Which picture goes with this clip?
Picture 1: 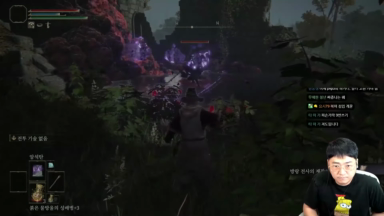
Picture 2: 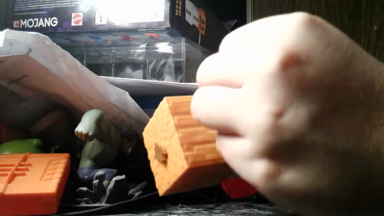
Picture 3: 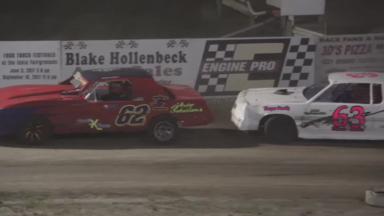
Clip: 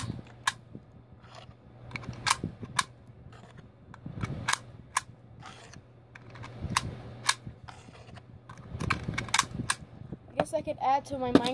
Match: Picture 2